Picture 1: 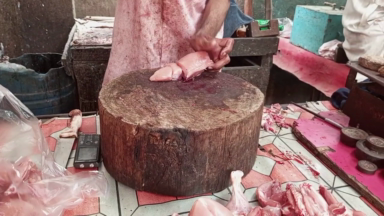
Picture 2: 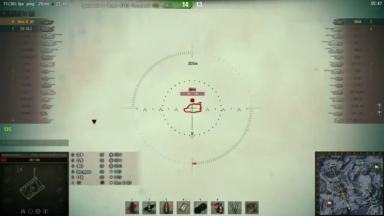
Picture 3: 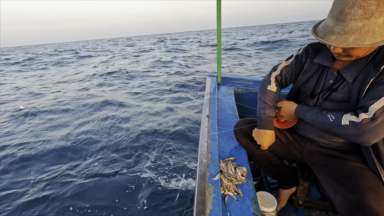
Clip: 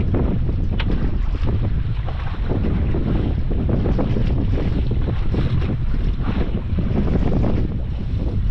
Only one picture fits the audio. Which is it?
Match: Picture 3